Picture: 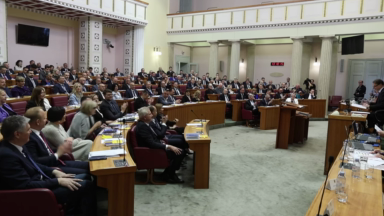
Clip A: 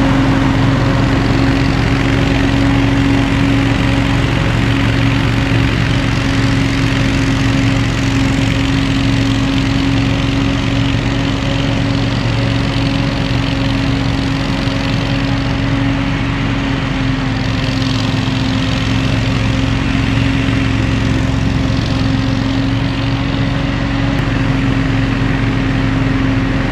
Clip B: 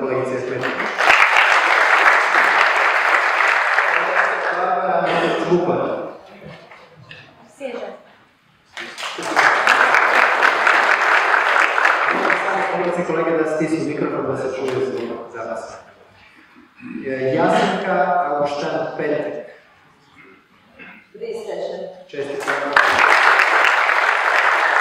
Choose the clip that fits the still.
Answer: B